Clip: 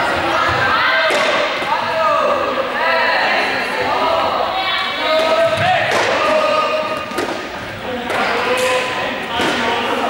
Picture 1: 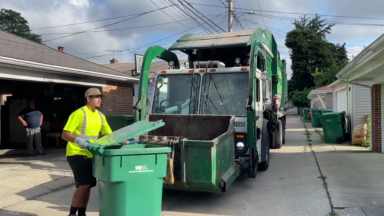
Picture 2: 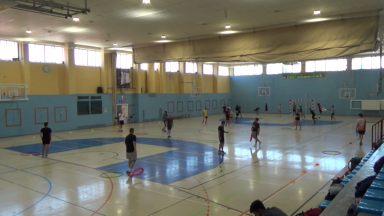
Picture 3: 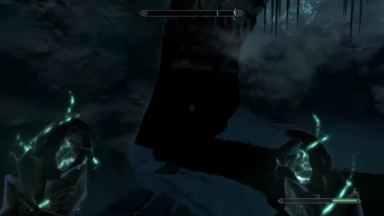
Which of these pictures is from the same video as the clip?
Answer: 2